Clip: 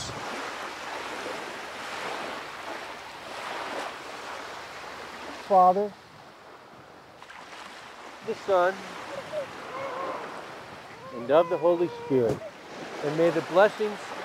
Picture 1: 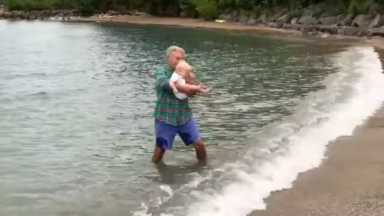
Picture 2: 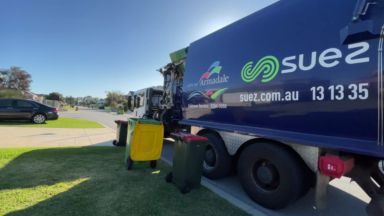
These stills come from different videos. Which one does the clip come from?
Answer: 1